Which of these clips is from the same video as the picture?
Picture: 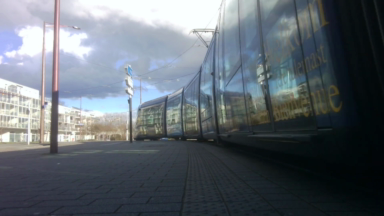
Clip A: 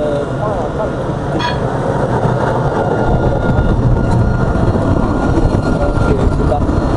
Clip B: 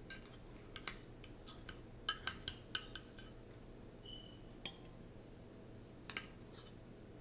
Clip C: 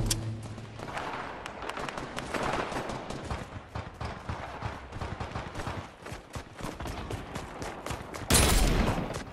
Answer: A